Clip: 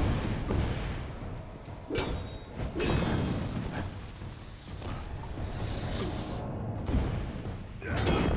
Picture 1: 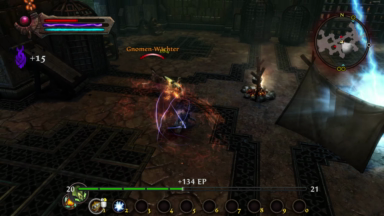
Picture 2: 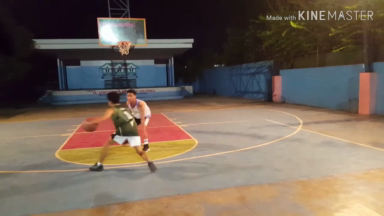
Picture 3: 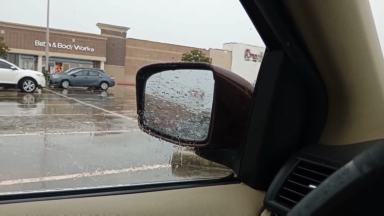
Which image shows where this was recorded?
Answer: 1